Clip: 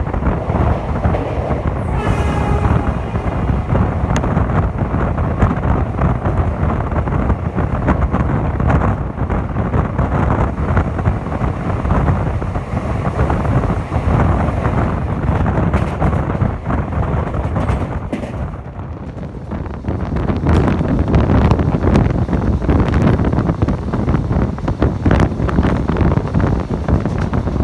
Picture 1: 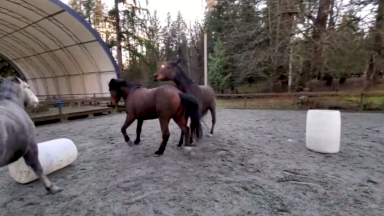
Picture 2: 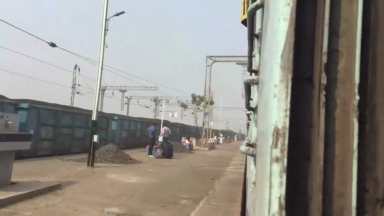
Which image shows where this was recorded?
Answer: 2